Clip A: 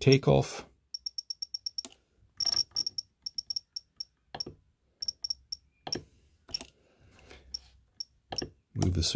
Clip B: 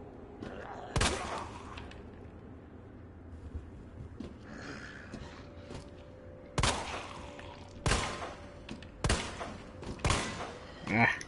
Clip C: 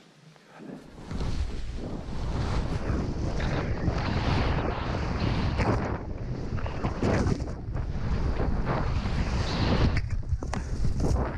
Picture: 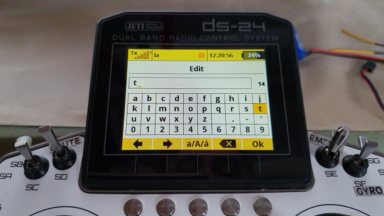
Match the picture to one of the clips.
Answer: A